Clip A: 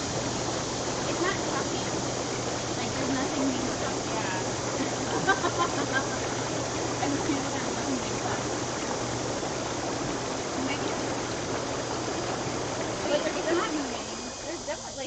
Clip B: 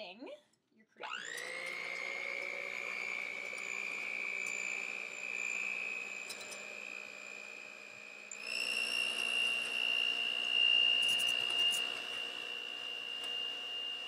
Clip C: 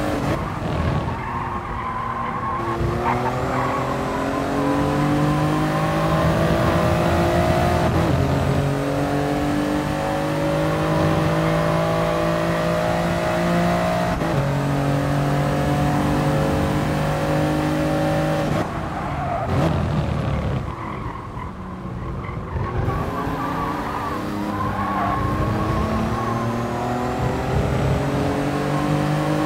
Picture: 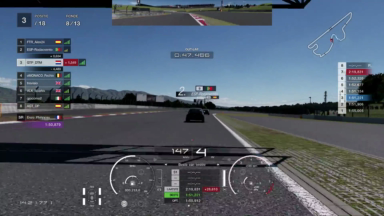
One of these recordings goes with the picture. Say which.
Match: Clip C